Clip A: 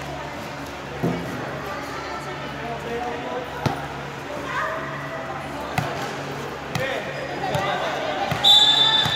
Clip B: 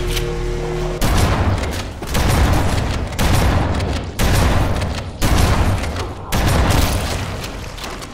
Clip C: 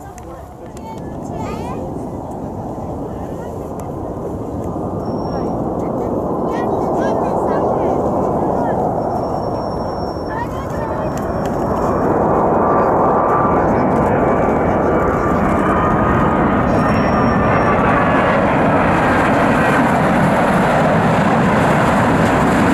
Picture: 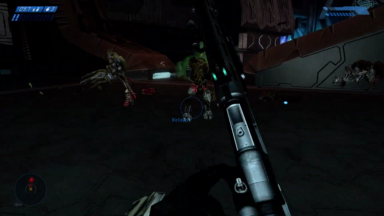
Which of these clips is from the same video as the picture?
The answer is B